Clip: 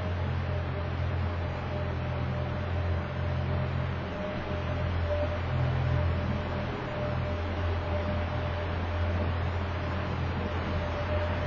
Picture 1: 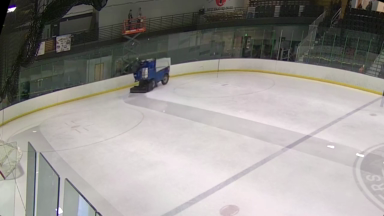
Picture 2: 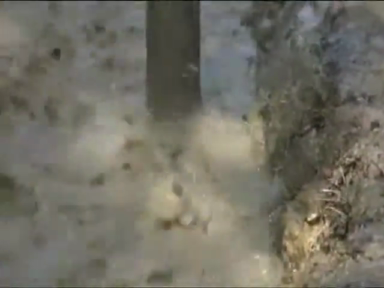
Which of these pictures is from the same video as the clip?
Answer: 1